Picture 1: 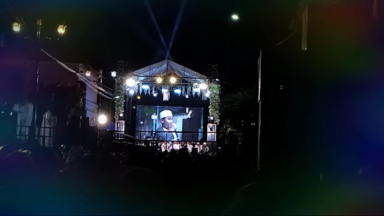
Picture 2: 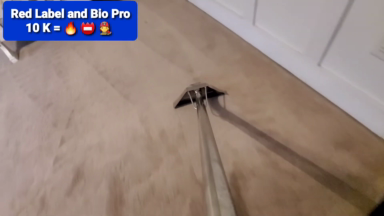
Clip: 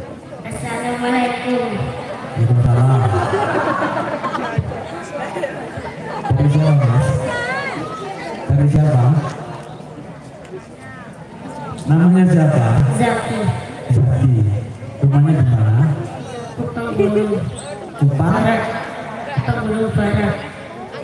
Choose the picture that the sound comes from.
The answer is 1